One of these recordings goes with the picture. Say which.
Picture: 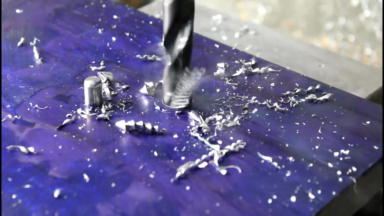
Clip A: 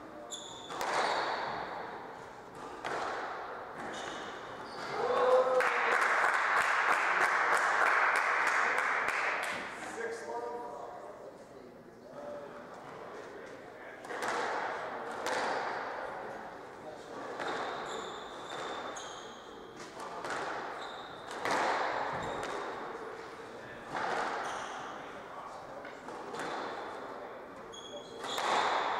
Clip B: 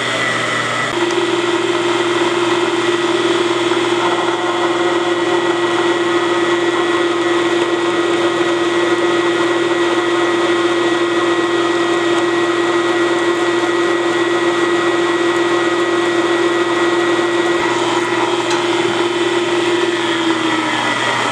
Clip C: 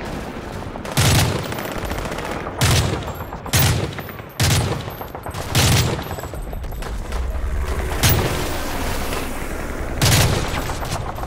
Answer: B